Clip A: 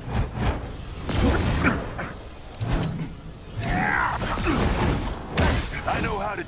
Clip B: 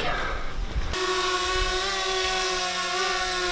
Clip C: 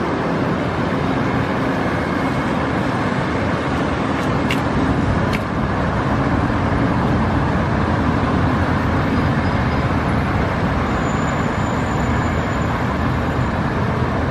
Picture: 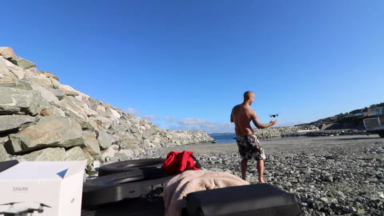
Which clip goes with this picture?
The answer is B